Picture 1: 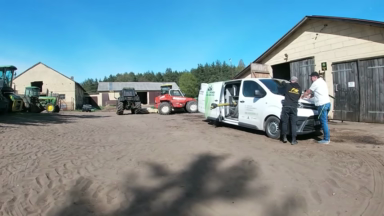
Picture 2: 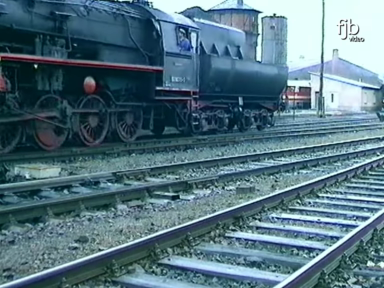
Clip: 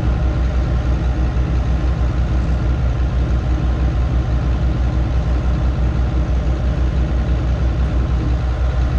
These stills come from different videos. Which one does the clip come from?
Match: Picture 1